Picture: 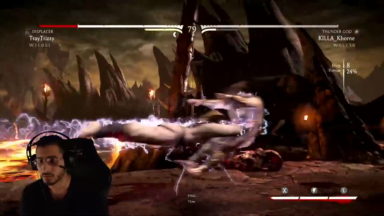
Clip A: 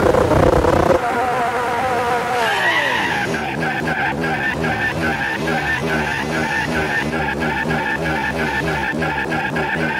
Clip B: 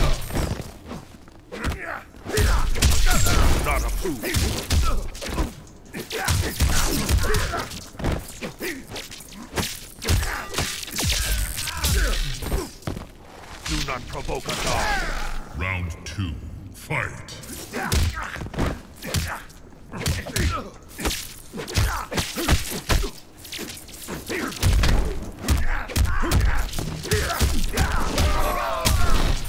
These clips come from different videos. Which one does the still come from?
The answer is B